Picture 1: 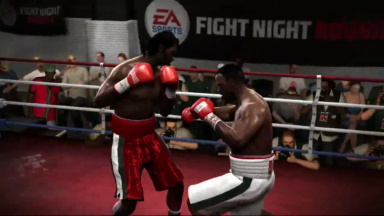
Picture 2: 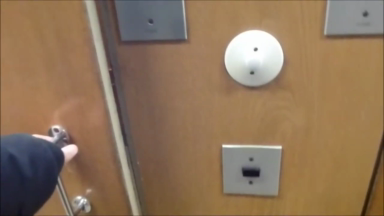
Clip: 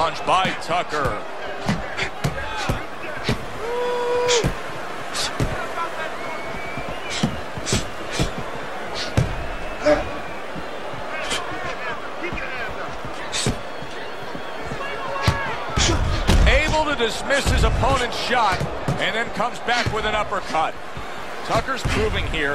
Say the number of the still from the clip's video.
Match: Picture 1